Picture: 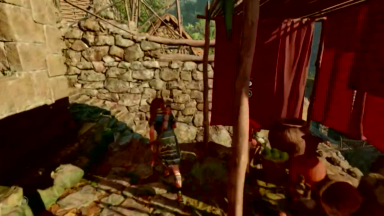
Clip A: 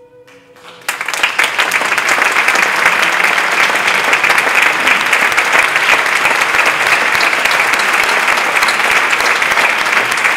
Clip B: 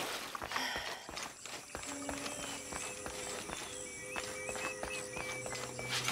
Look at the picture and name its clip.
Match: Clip B